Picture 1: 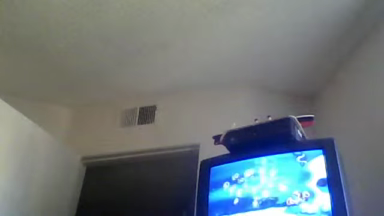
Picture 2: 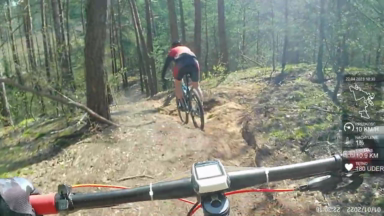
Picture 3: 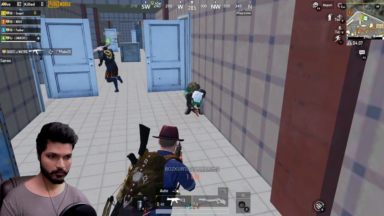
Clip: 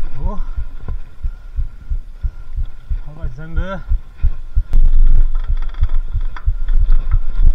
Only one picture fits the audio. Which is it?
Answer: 2